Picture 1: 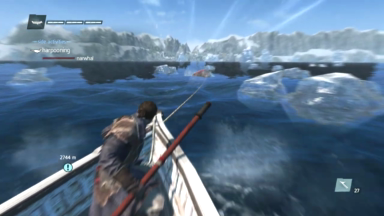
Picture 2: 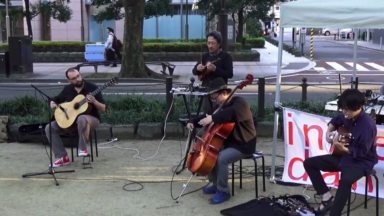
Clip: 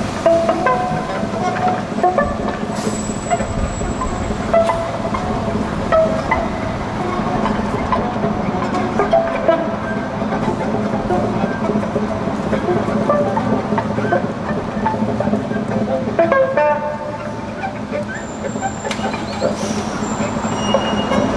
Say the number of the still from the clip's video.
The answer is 2